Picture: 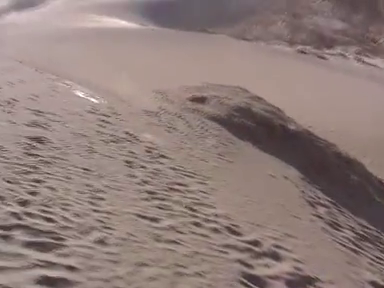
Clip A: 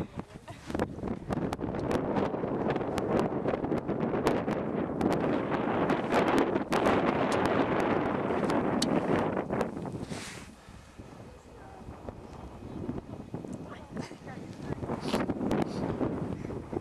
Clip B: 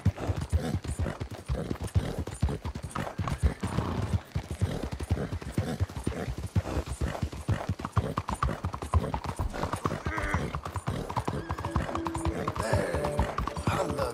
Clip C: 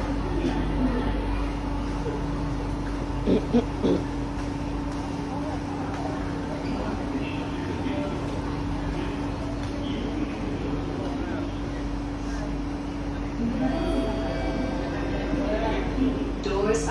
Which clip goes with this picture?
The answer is A